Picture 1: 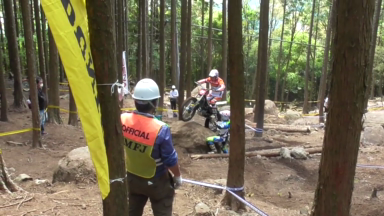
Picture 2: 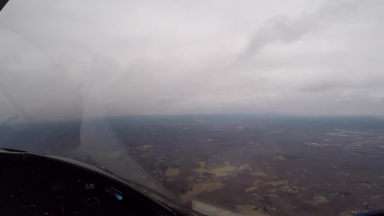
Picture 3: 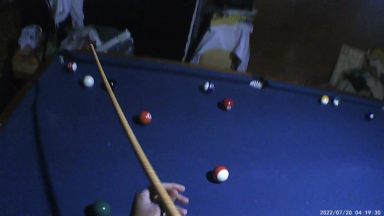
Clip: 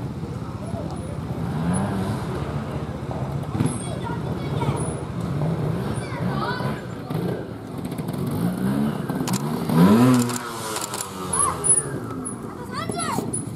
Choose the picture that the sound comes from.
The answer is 1